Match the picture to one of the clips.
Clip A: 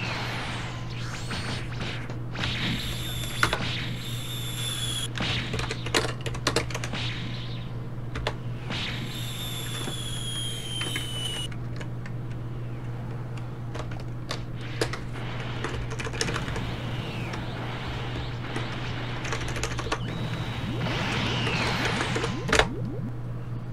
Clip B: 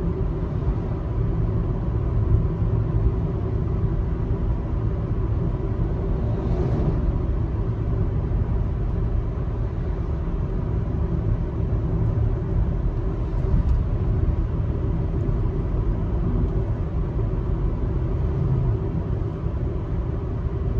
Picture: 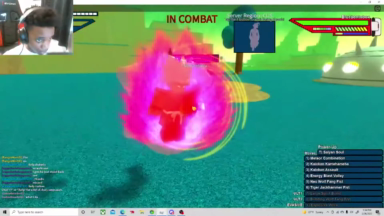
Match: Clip A